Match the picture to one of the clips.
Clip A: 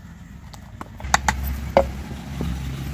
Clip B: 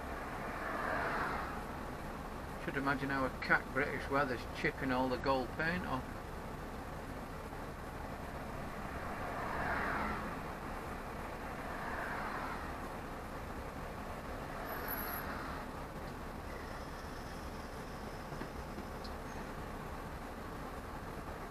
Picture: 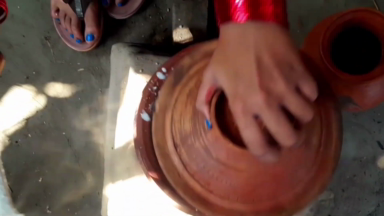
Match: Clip A